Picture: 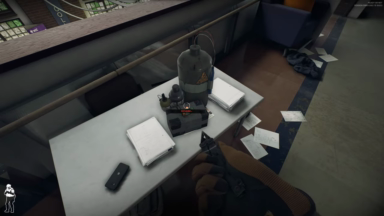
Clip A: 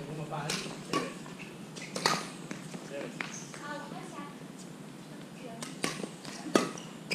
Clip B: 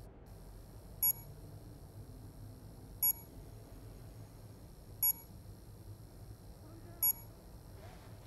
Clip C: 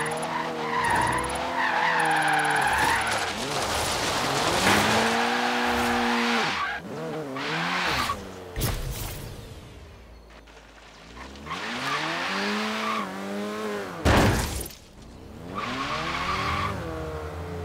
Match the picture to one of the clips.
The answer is B